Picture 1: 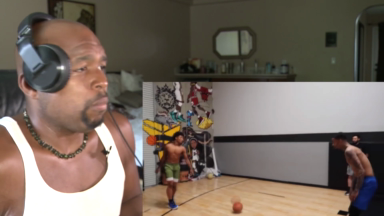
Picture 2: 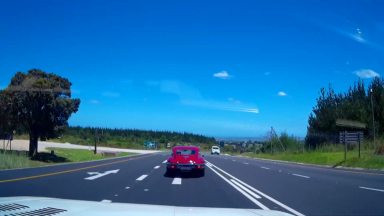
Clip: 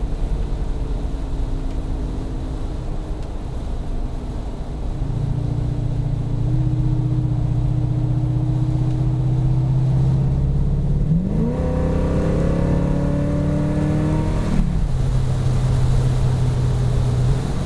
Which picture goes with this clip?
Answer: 2